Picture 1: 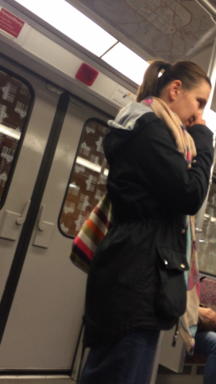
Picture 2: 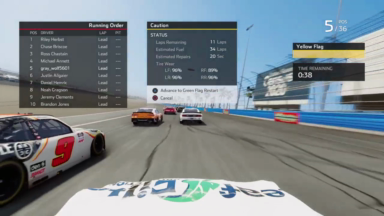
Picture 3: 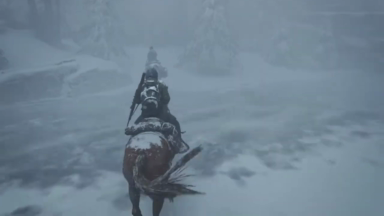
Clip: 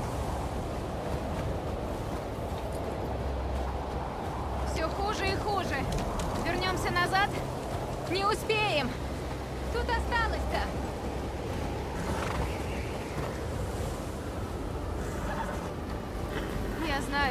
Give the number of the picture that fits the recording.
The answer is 3